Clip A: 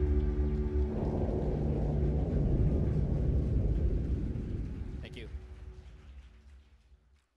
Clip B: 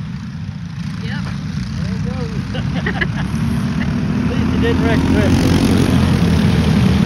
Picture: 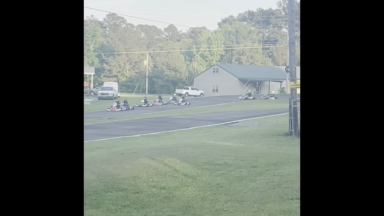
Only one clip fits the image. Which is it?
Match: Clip B